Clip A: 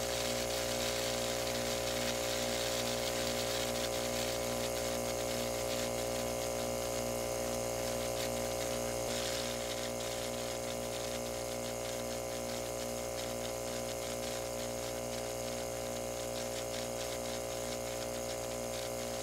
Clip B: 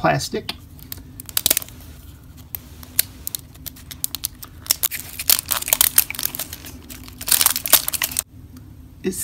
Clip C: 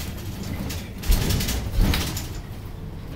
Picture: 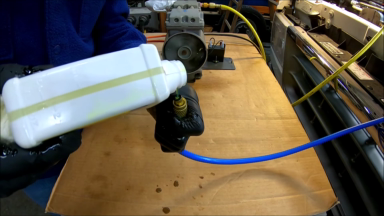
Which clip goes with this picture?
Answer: A